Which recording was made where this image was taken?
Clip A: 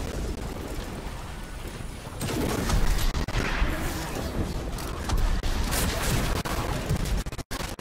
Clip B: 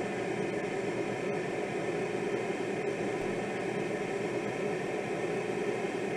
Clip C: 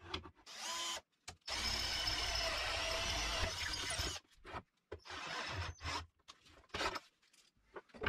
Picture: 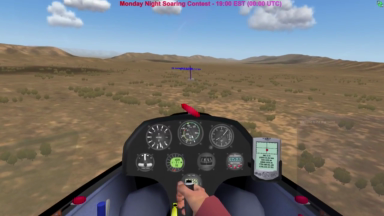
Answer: B